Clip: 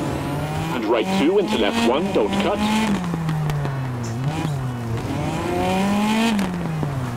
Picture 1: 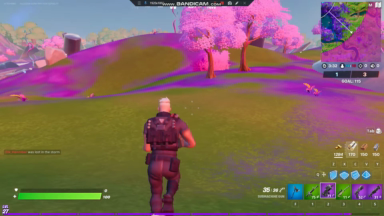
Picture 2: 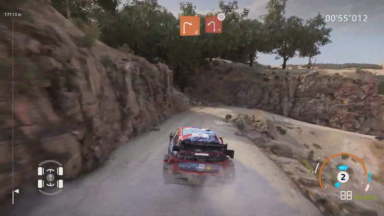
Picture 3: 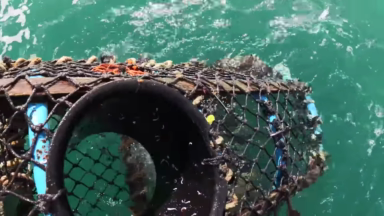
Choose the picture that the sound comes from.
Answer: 2